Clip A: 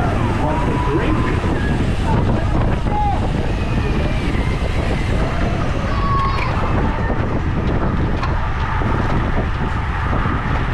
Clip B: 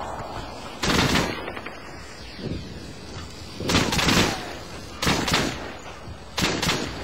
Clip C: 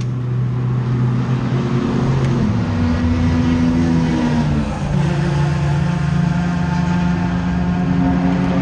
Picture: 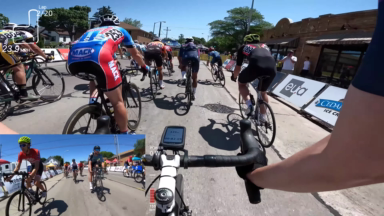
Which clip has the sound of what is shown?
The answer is A